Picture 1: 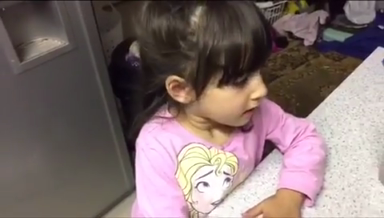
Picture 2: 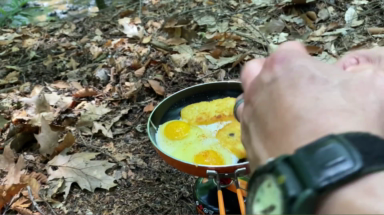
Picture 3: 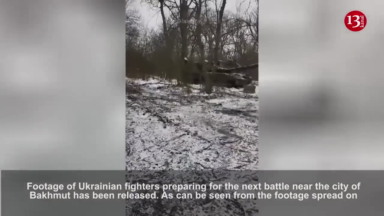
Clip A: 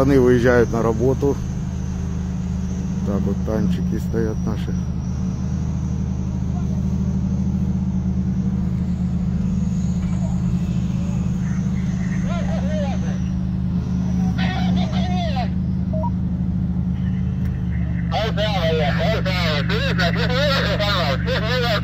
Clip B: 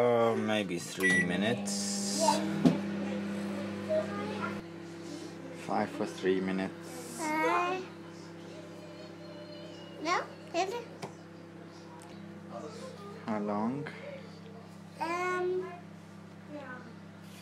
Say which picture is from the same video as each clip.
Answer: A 3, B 1